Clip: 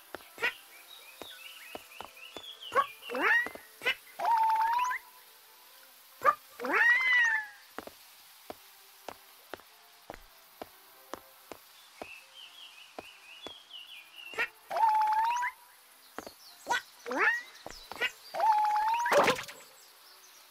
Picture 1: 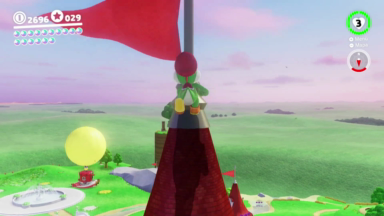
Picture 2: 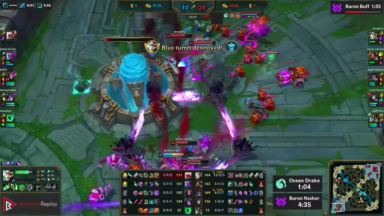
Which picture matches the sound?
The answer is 1